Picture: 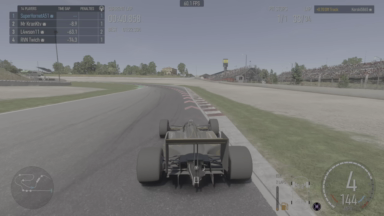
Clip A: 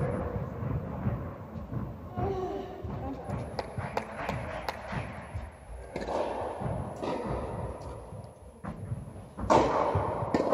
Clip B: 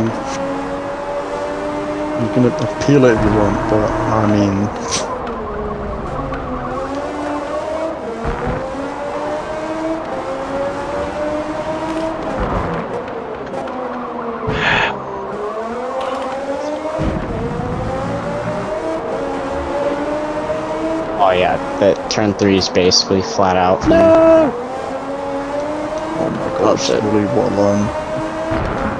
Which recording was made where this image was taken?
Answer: B